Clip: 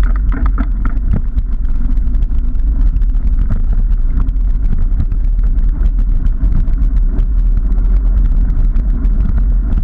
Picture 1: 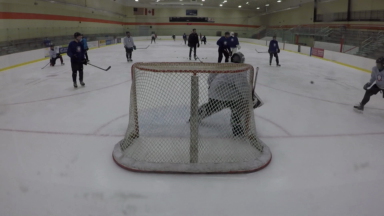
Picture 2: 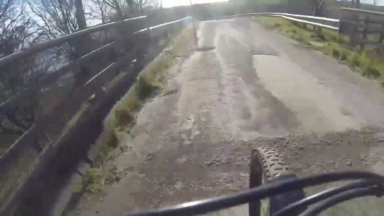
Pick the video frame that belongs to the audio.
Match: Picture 2